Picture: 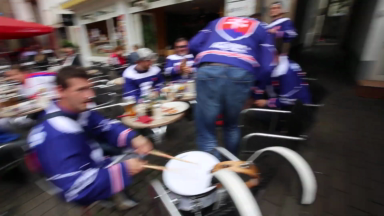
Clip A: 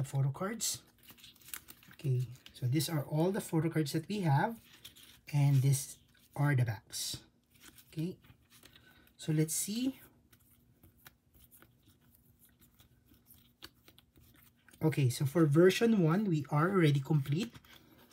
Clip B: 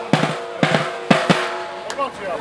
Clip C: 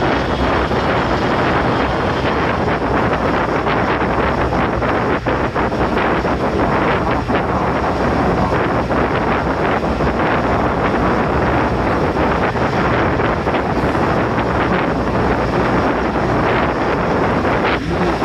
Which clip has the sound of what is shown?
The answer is B